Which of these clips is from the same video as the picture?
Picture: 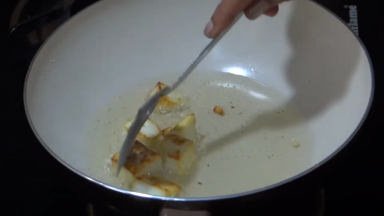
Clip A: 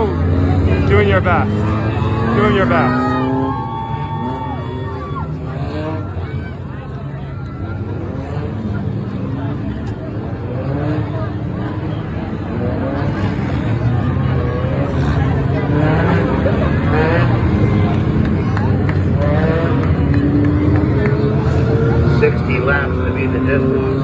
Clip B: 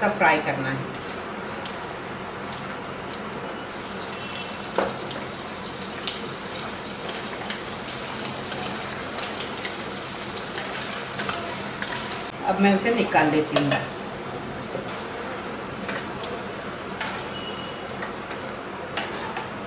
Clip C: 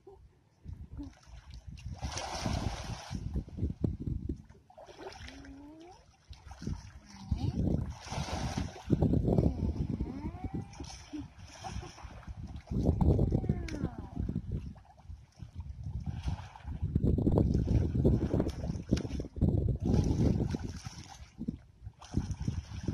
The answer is B